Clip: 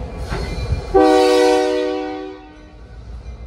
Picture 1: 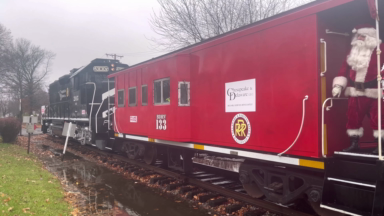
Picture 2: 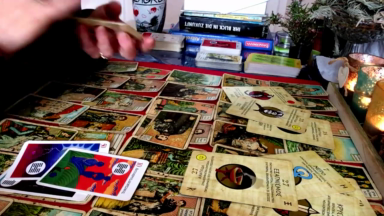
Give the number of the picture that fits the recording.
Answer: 1